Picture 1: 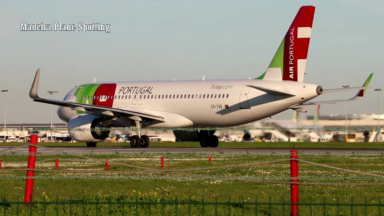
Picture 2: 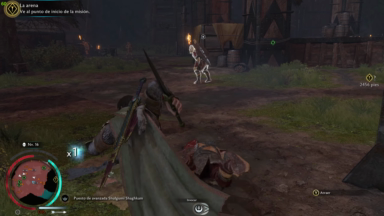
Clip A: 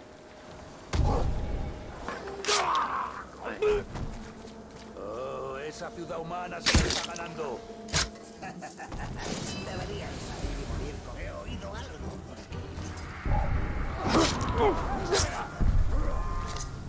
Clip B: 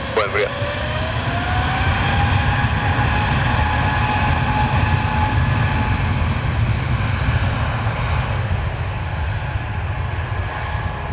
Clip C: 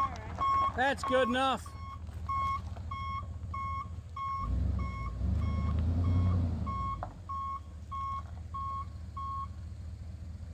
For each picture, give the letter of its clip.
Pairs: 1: B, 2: A